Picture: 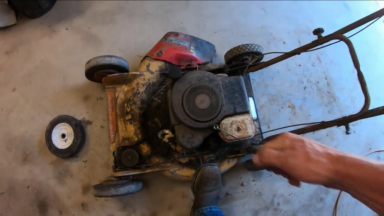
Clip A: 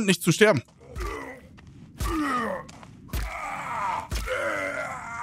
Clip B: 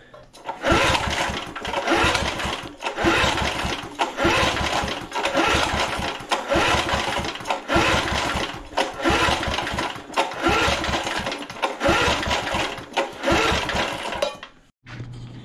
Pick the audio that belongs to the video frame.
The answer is B